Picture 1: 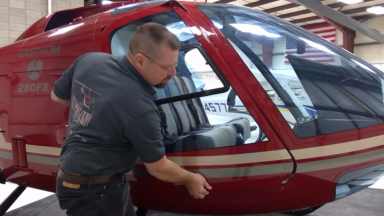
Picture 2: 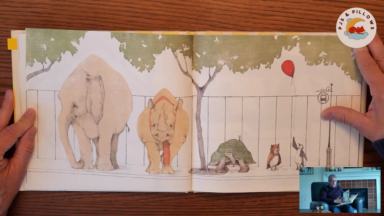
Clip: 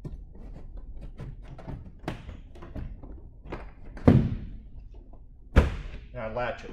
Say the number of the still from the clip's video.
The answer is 1